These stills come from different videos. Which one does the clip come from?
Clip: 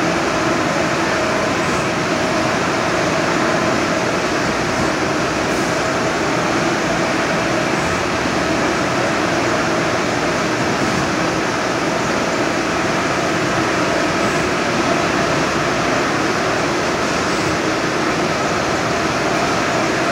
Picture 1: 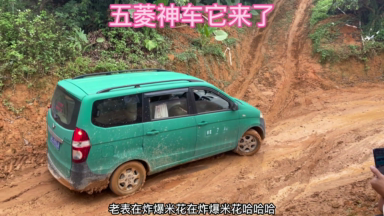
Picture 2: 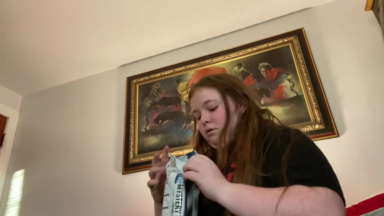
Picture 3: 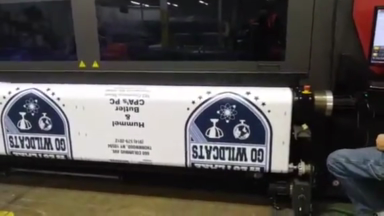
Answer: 3